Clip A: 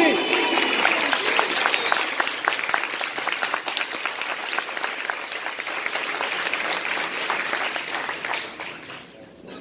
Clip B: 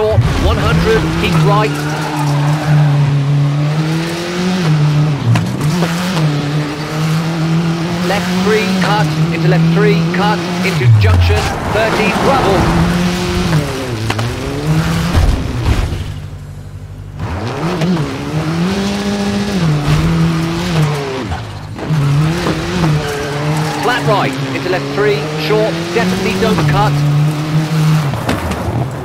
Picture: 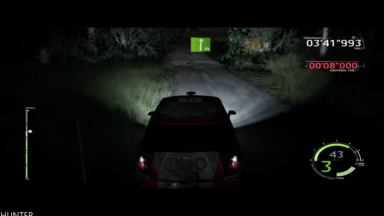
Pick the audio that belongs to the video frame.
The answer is B